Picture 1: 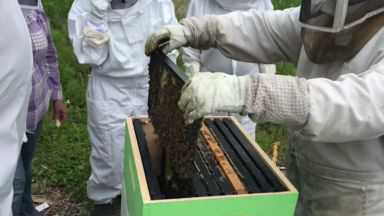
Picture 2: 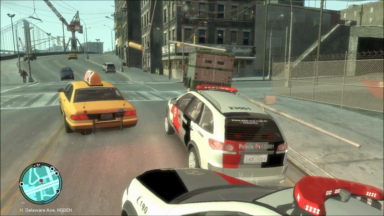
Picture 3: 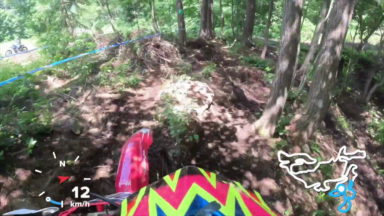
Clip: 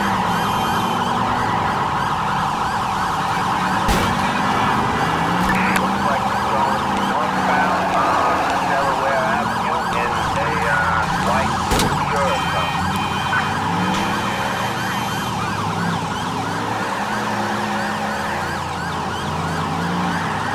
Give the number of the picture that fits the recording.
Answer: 2